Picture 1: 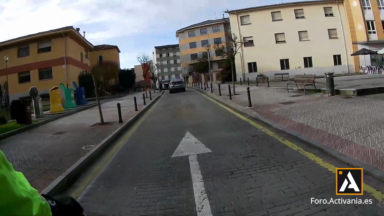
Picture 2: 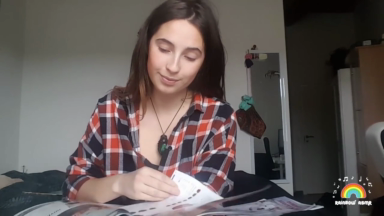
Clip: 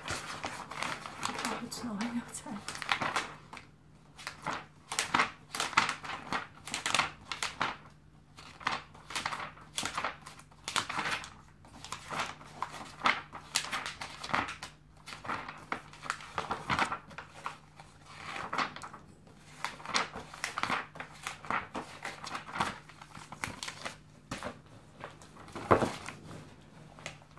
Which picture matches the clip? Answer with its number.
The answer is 2